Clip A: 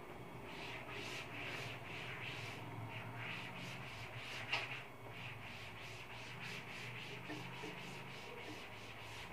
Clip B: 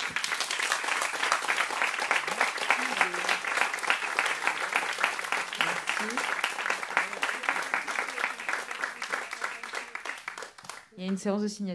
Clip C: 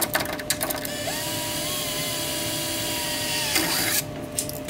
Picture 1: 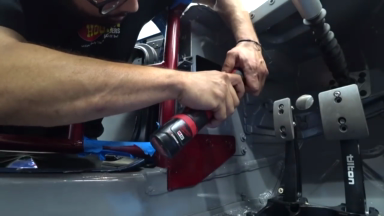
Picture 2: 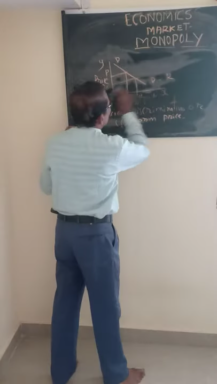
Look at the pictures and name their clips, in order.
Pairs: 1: C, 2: A